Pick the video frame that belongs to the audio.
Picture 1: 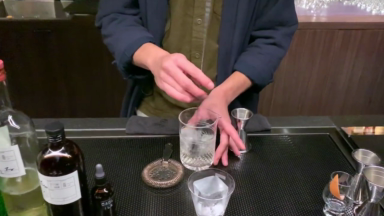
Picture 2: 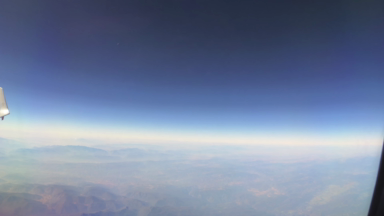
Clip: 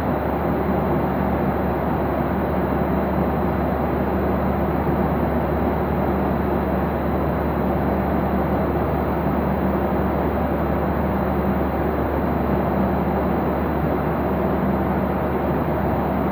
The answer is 2